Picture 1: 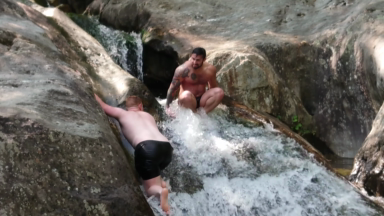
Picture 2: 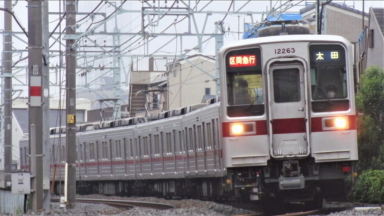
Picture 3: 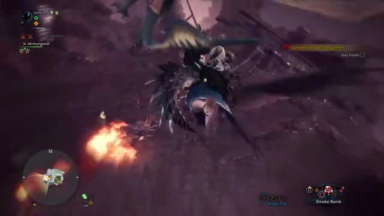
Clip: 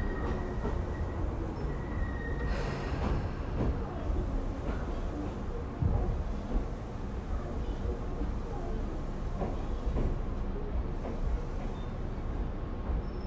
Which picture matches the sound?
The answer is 2